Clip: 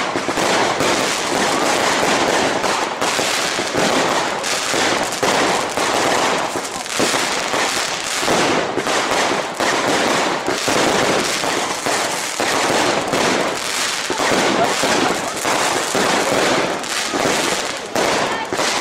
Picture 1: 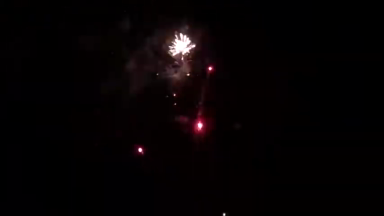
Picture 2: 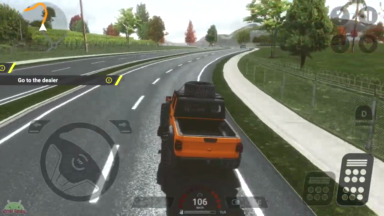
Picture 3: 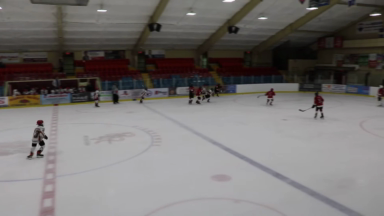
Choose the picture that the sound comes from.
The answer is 1